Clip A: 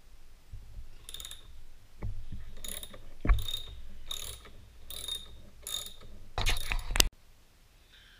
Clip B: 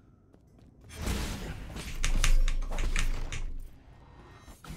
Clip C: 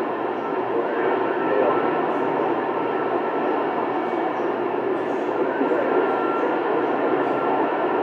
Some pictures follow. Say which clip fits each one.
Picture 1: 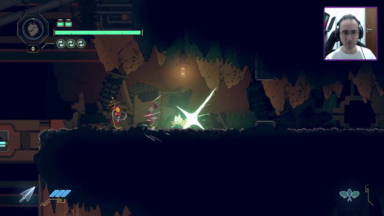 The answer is B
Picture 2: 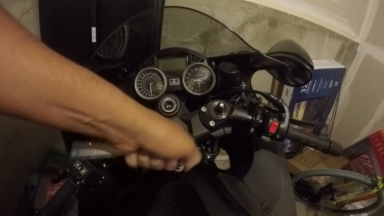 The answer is A